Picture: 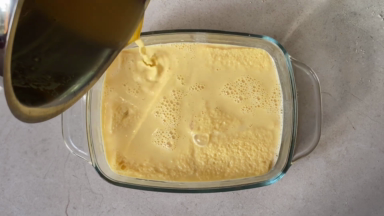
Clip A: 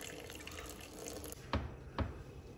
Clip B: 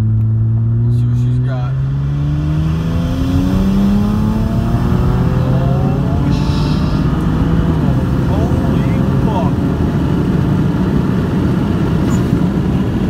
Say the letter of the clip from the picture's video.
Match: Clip A